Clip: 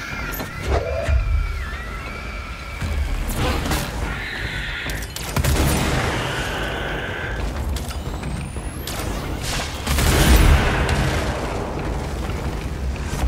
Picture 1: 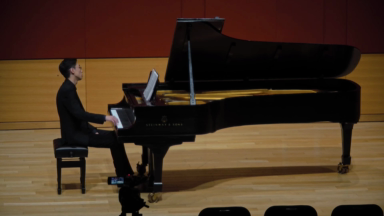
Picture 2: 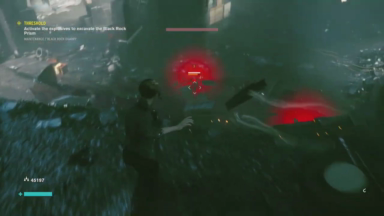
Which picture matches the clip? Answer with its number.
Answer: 2